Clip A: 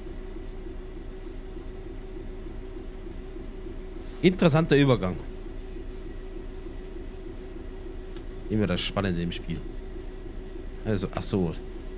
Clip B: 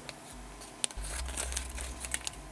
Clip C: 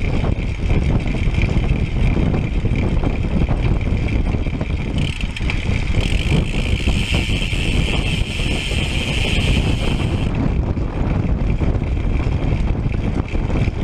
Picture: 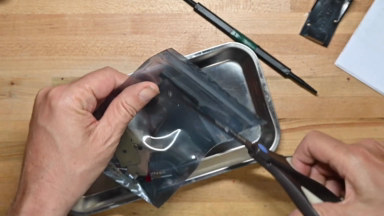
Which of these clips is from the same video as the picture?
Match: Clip B